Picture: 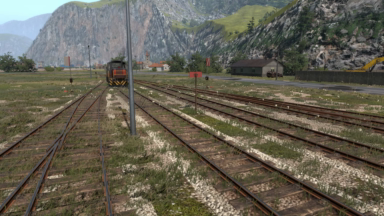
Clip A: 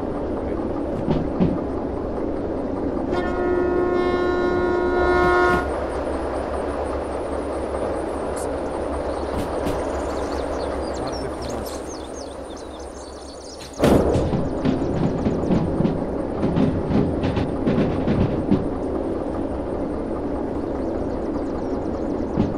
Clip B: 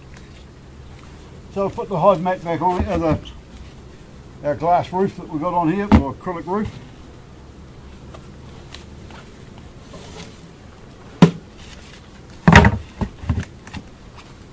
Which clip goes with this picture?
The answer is A